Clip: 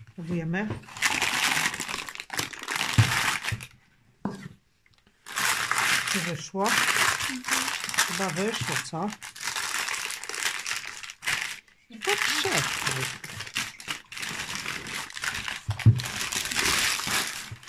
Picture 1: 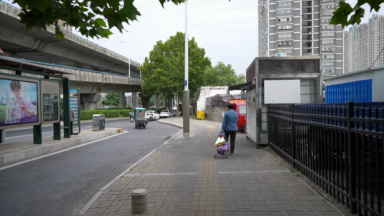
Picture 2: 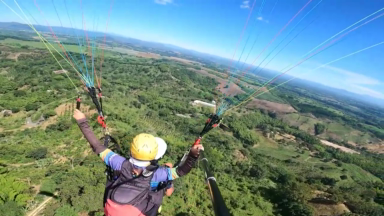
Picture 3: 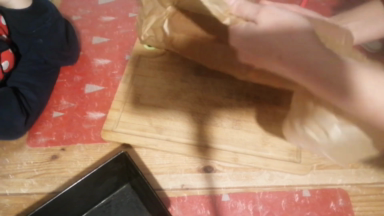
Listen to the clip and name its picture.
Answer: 3